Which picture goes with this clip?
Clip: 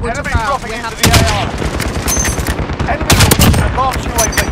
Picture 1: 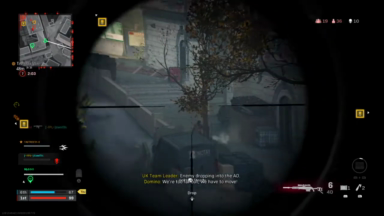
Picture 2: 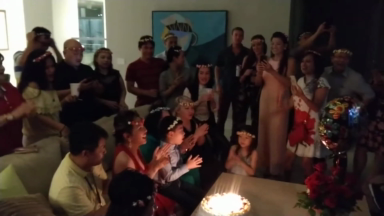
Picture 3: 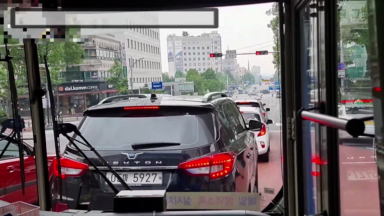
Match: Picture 1